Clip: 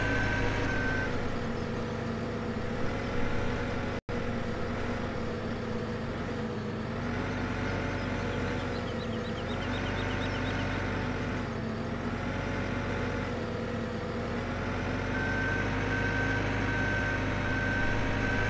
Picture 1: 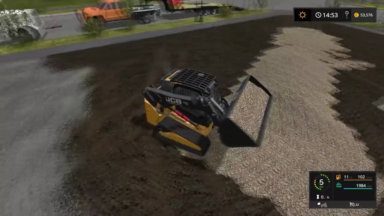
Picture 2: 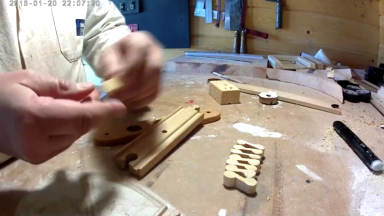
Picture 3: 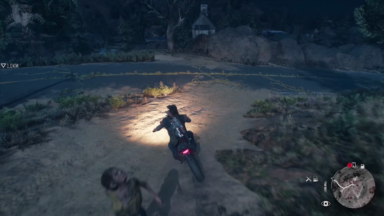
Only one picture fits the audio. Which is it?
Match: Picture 1